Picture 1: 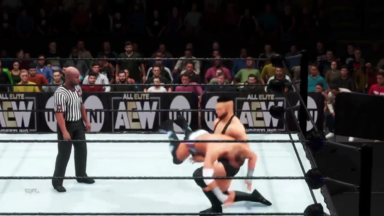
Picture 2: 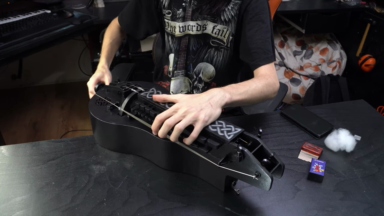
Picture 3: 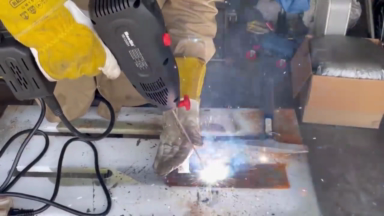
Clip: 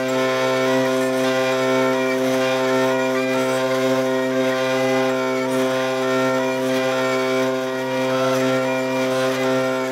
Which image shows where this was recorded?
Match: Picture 2